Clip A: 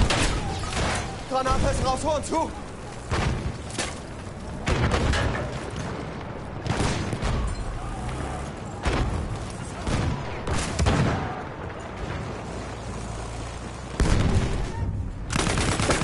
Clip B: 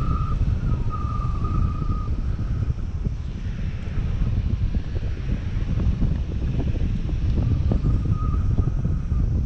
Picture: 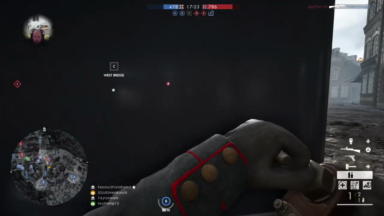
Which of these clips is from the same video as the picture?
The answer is A